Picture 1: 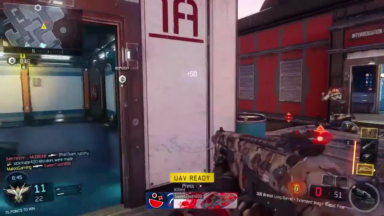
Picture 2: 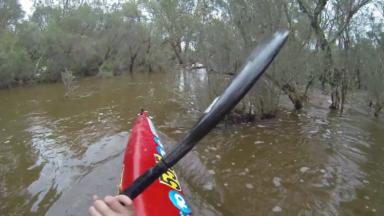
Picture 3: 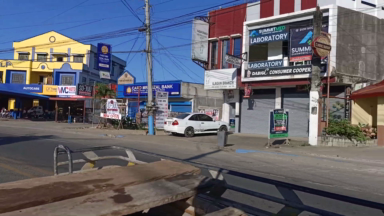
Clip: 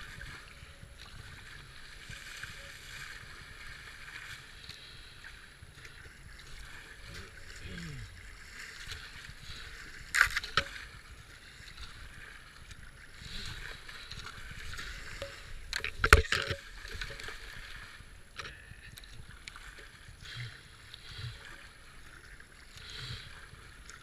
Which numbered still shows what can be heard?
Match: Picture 2